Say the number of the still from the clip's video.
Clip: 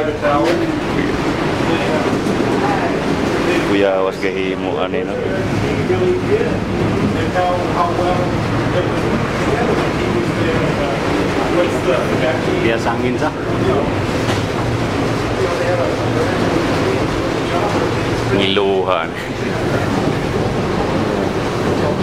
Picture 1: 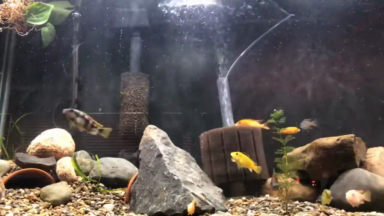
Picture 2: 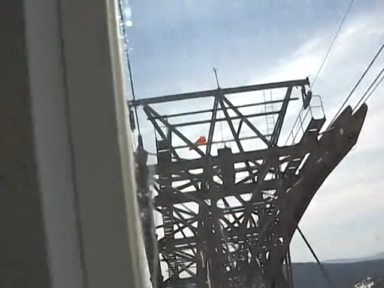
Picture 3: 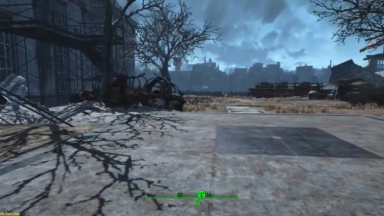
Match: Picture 2